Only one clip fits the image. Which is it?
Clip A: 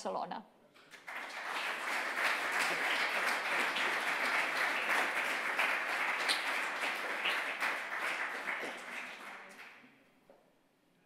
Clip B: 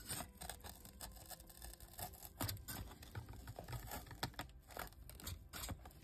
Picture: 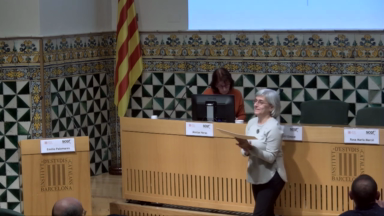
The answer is A